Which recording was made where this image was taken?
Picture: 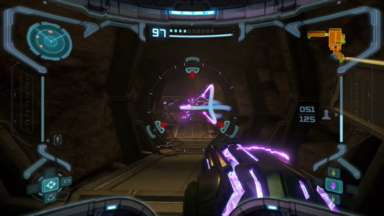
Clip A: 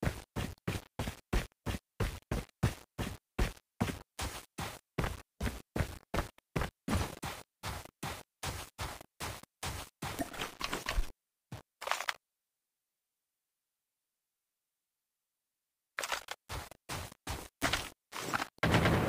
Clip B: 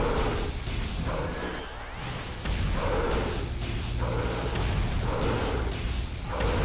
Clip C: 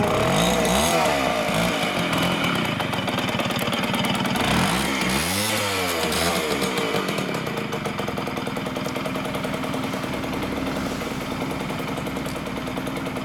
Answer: B